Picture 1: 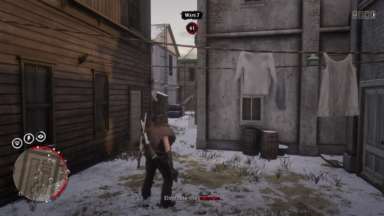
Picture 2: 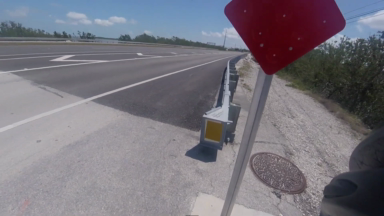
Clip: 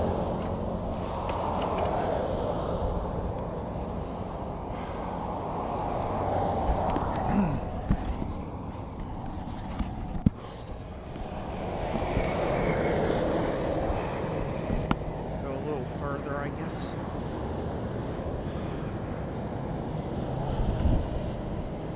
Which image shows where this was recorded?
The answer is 2